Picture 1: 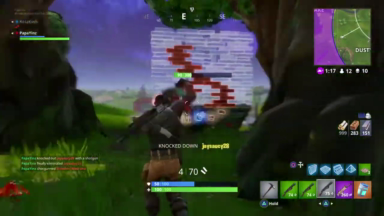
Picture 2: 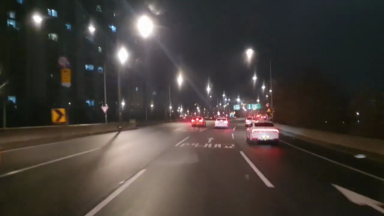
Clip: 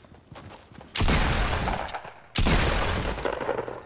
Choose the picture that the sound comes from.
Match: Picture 1